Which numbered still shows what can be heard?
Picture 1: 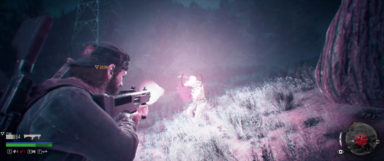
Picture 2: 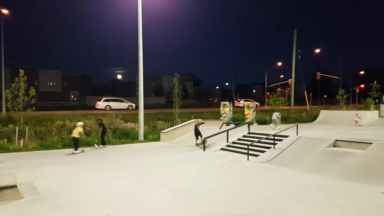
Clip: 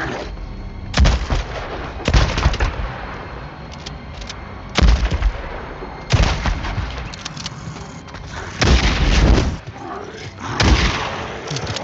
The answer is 1